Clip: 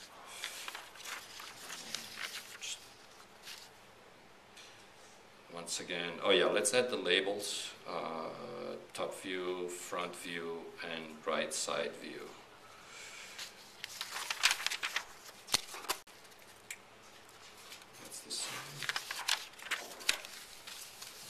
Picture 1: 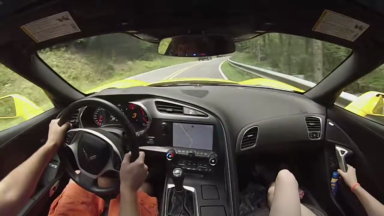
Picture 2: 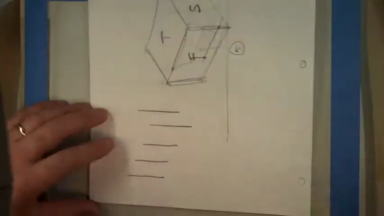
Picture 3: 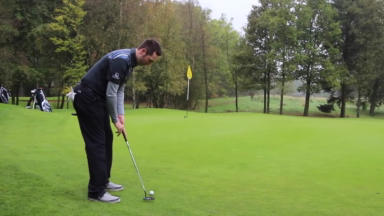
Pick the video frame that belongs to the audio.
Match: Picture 2